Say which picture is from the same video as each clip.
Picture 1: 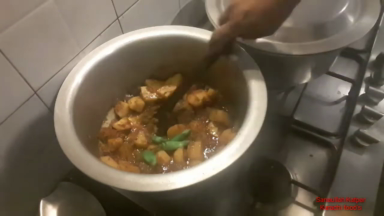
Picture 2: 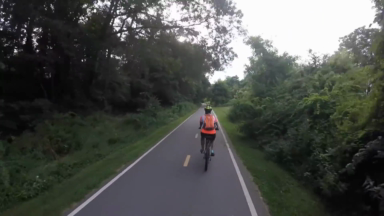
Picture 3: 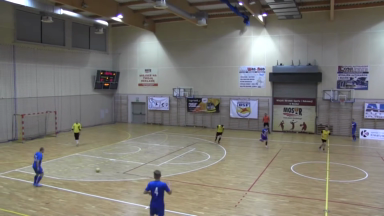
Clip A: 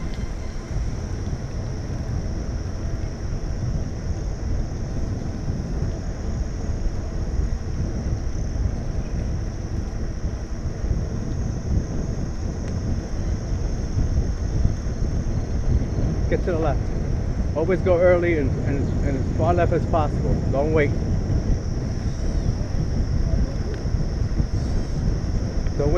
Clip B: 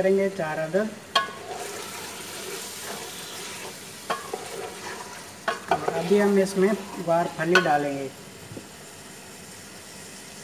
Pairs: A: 2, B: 1